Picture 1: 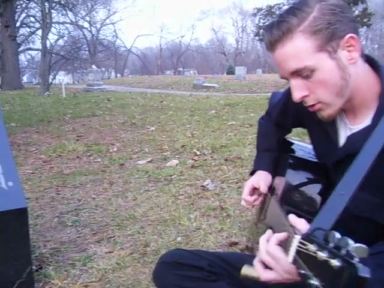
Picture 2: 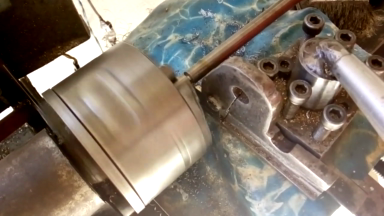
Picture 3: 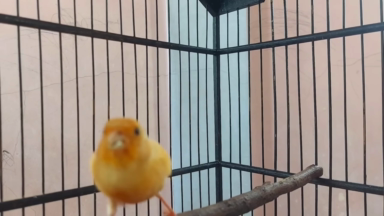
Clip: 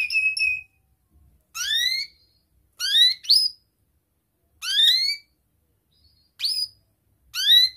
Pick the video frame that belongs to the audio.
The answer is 3